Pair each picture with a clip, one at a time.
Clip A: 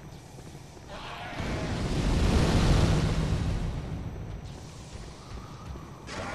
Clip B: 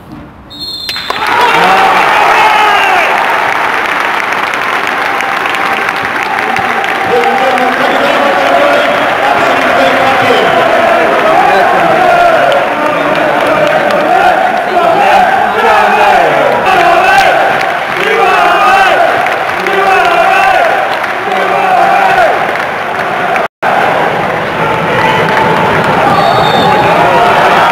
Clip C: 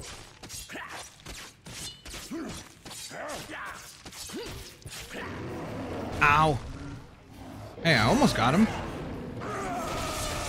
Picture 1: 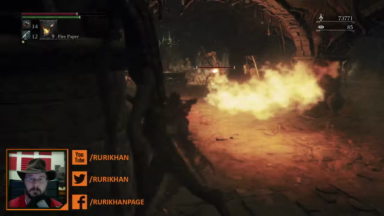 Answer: A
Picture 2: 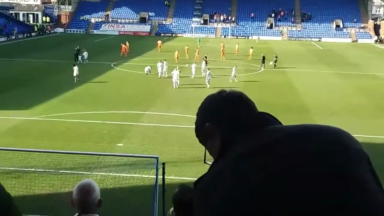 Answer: B